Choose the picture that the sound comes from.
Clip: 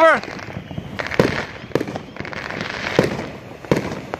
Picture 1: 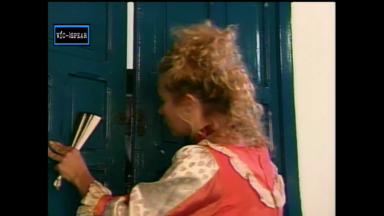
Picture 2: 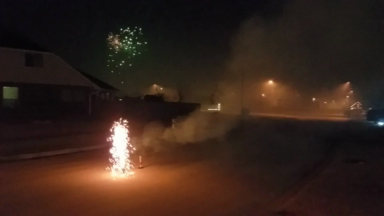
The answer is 2